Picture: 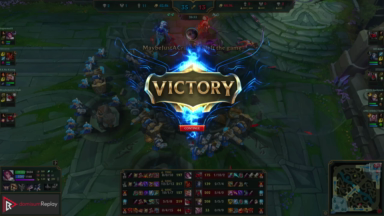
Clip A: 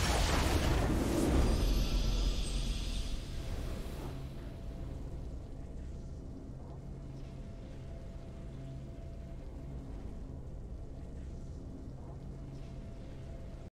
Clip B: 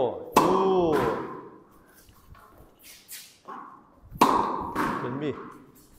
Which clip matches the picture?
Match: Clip A